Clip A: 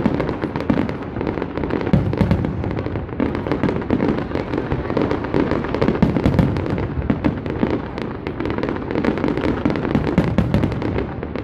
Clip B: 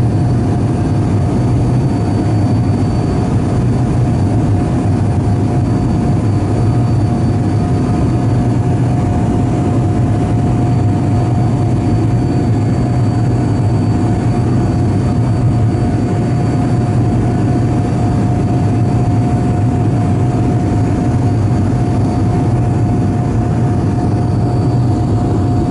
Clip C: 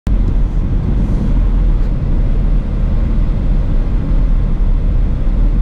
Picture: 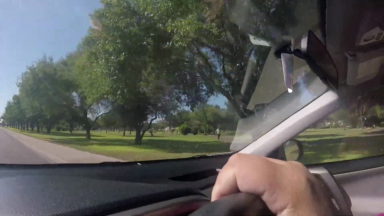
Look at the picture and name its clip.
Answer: C